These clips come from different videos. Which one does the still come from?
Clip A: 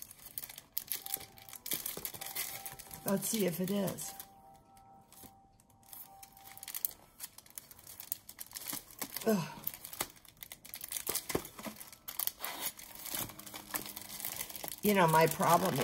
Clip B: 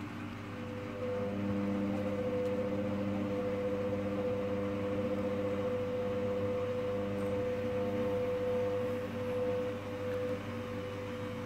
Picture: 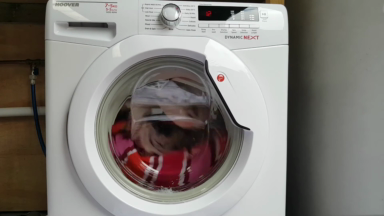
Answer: B